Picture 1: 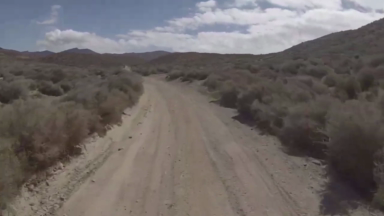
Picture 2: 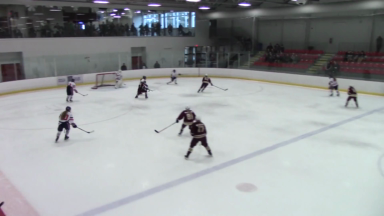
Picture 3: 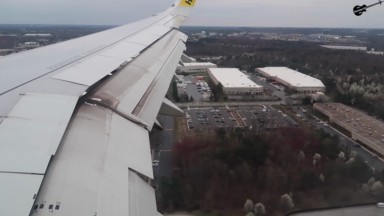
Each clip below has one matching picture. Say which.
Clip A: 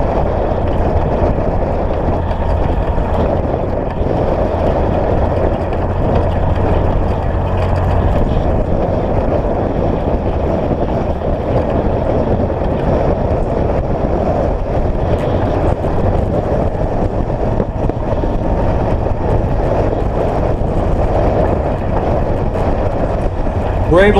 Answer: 1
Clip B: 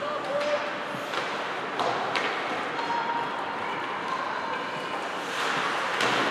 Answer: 2